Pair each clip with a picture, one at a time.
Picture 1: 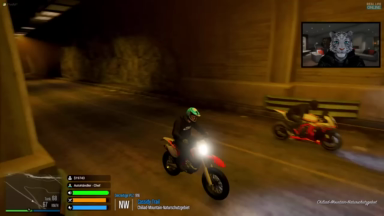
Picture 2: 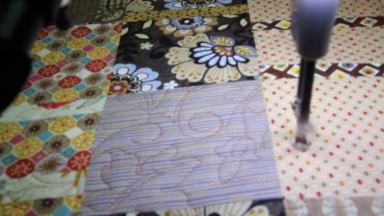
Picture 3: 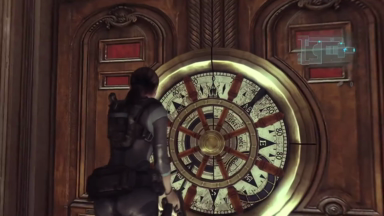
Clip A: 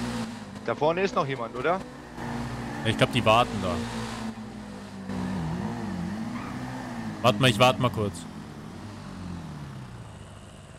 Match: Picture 1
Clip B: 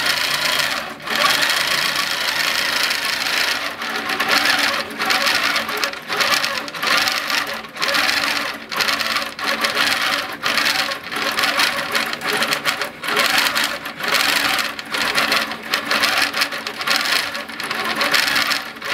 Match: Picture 2